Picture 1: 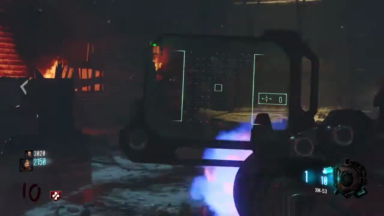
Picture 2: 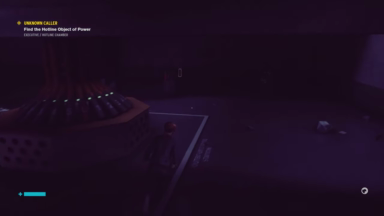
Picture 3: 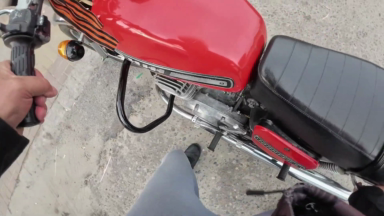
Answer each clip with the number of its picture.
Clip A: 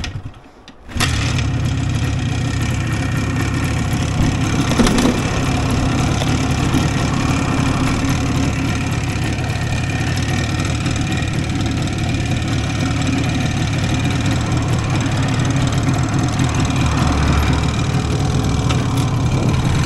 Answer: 3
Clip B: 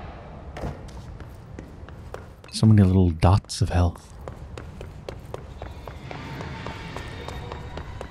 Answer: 2